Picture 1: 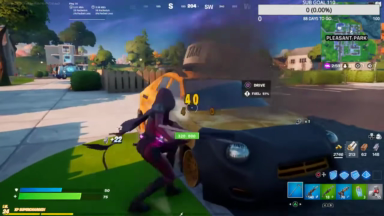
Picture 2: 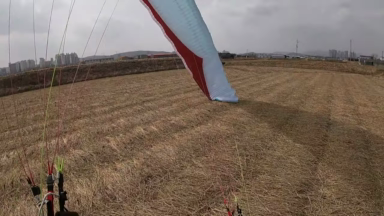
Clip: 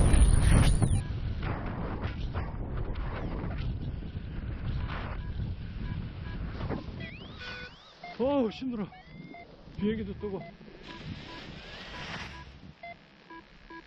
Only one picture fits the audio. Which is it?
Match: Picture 2